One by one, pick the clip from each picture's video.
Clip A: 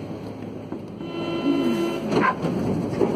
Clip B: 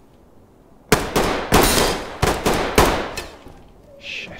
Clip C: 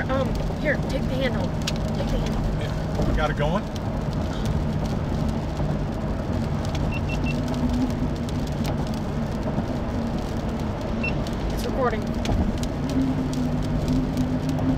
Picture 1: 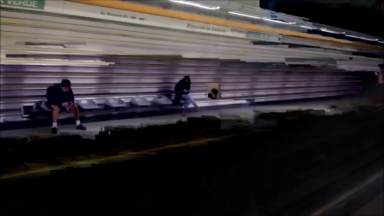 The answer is A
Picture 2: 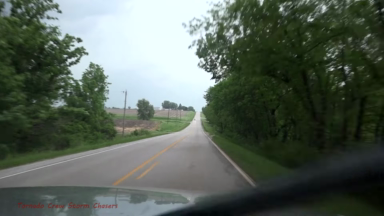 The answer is C